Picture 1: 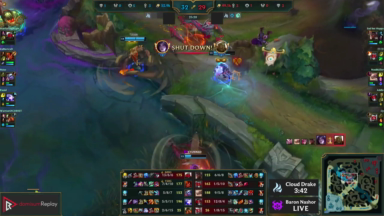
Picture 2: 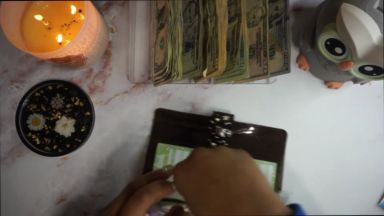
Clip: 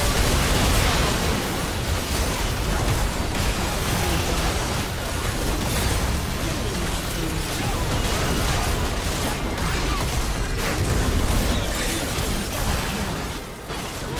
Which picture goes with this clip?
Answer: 1